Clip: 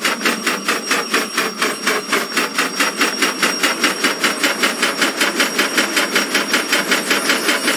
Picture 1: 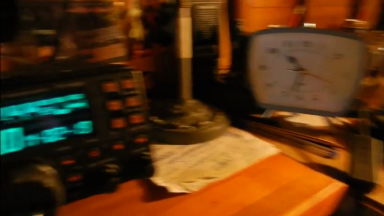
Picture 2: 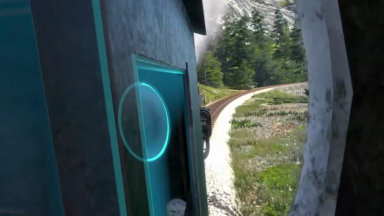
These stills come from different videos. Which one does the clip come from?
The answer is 2